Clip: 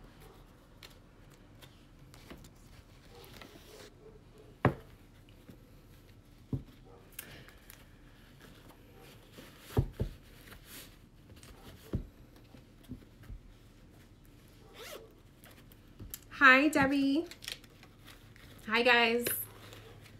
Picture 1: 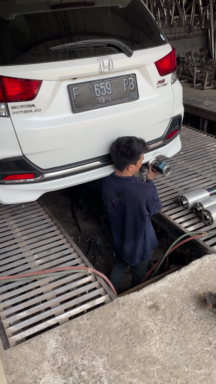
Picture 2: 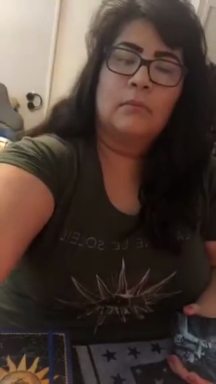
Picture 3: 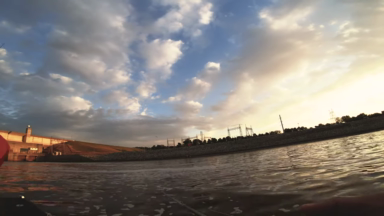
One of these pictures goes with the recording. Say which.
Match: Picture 2